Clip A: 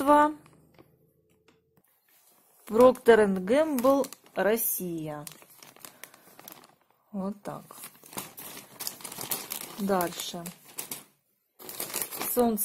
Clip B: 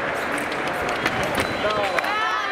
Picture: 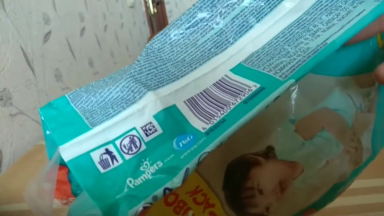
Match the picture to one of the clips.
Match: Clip A